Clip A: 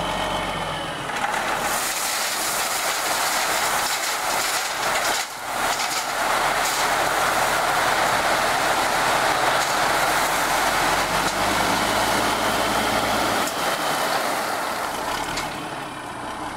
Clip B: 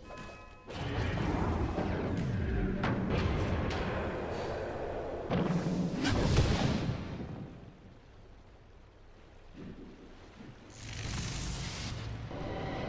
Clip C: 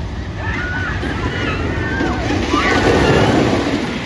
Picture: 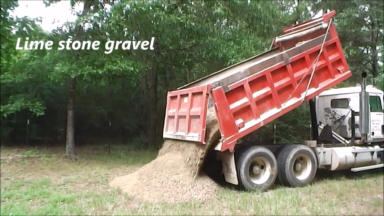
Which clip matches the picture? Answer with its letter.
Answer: A